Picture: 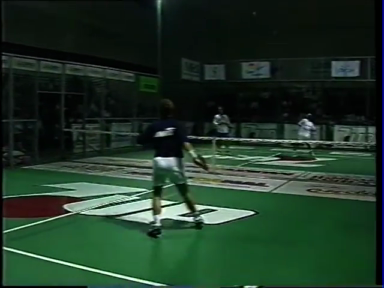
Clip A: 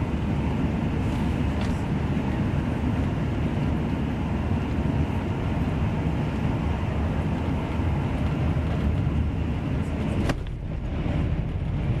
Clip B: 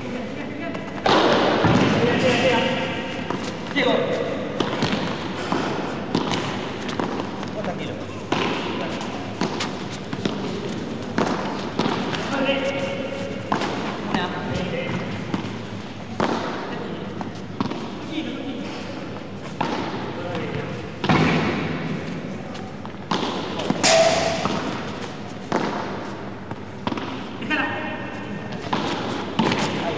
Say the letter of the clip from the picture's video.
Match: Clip B